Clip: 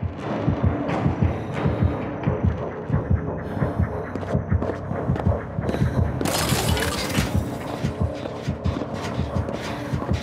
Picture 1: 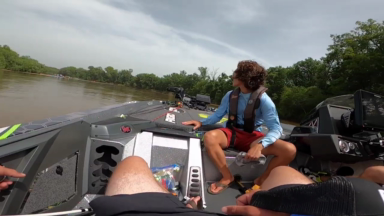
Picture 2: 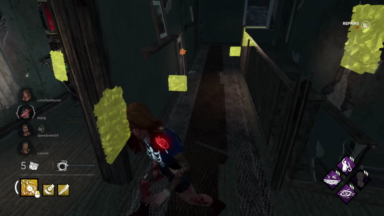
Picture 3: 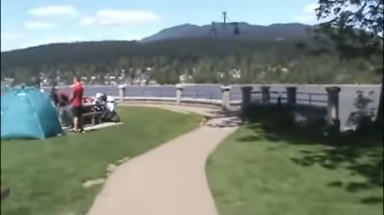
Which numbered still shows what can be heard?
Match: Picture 2